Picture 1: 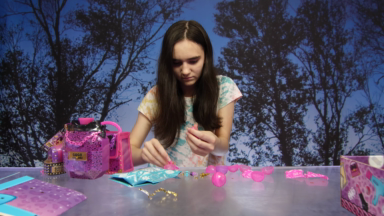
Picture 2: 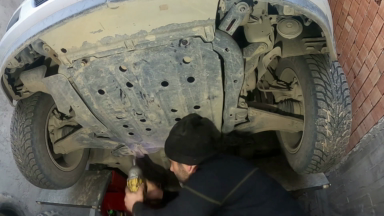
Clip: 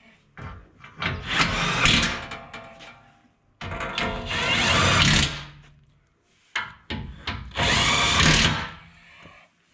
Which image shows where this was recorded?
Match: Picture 2